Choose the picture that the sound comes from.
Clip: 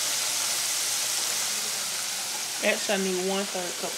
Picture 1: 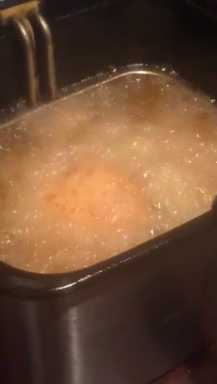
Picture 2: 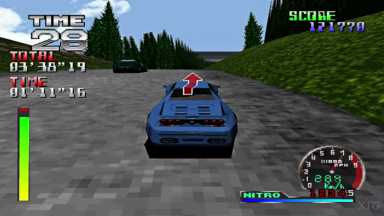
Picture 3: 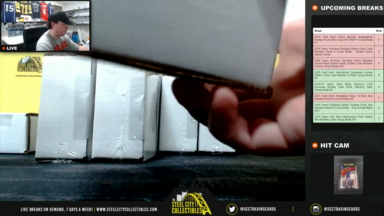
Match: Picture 1